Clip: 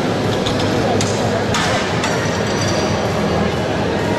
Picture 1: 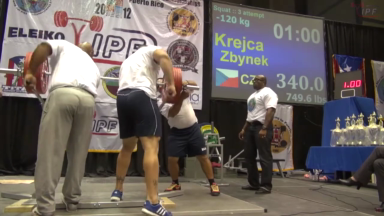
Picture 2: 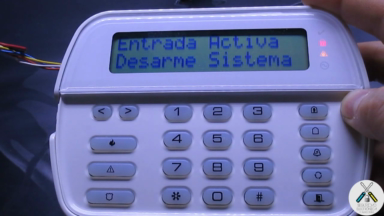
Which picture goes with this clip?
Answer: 1